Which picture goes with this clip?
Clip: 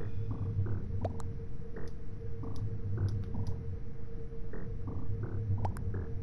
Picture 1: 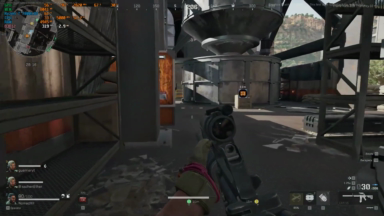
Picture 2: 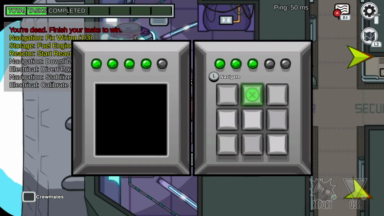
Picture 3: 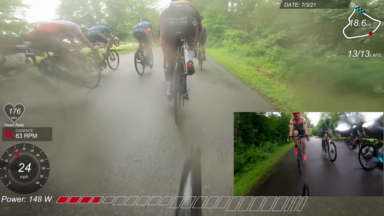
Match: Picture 2